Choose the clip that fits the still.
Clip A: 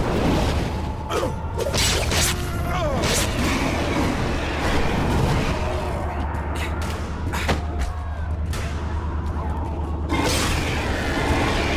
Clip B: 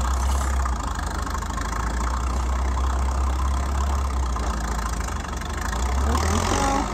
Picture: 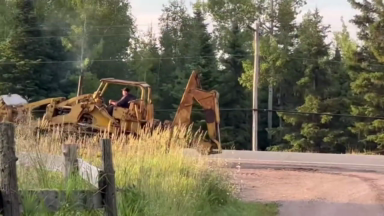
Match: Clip B